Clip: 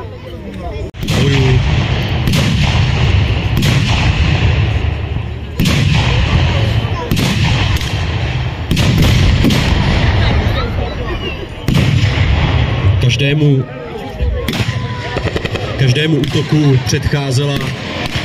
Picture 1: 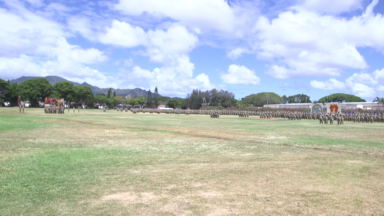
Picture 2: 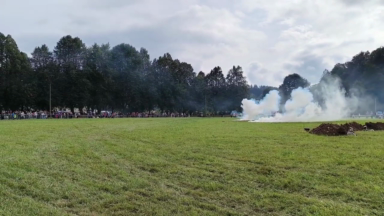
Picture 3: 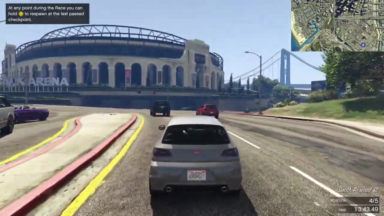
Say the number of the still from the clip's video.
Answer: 2